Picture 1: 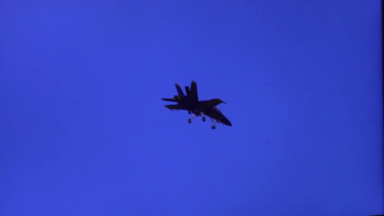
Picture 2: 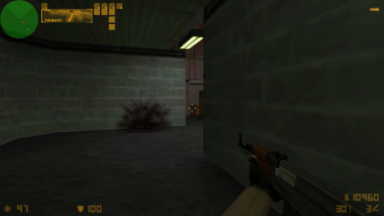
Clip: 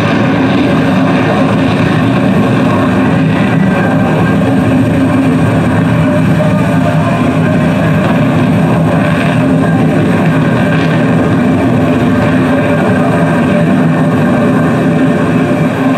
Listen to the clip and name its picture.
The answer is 1